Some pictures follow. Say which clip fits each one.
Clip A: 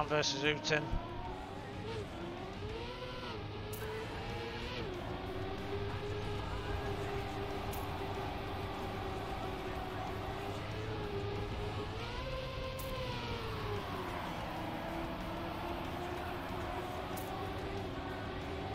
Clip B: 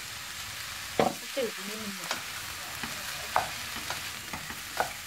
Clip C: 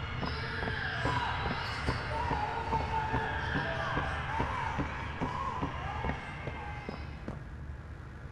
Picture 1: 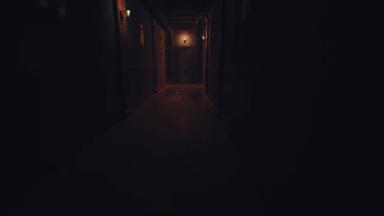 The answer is C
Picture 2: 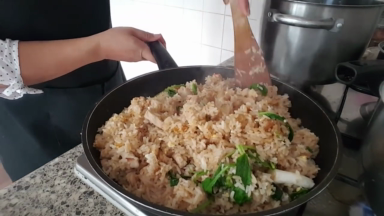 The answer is B